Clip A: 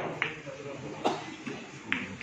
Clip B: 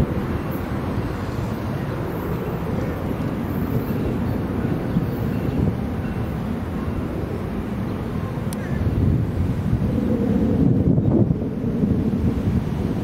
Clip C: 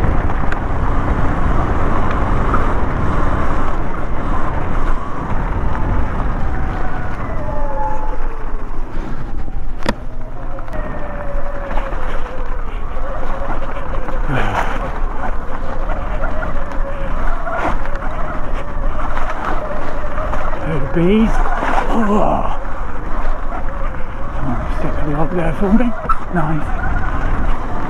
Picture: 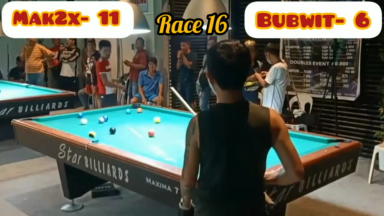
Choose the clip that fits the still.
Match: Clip A